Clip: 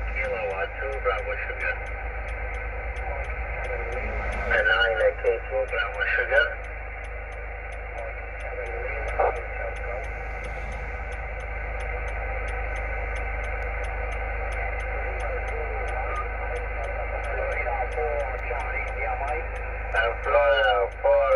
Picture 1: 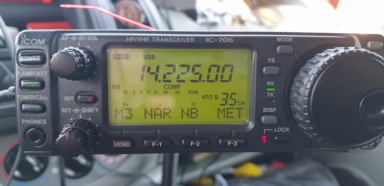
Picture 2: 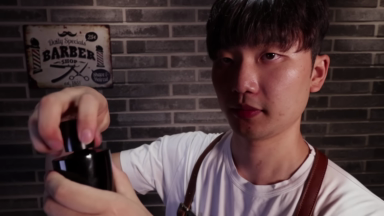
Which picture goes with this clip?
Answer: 1